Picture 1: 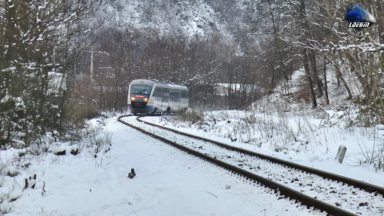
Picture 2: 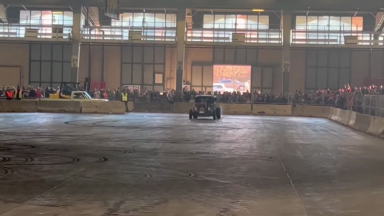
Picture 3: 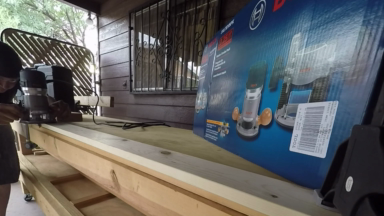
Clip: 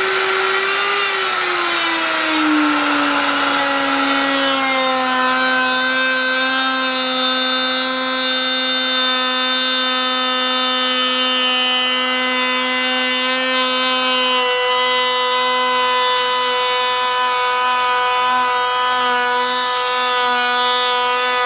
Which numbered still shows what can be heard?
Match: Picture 3